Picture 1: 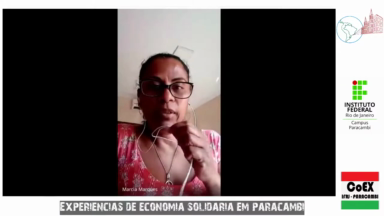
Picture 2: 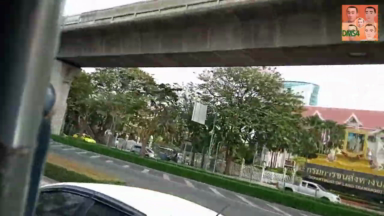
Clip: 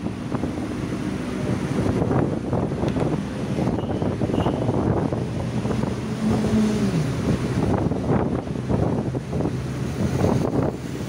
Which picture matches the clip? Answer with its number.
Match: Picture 2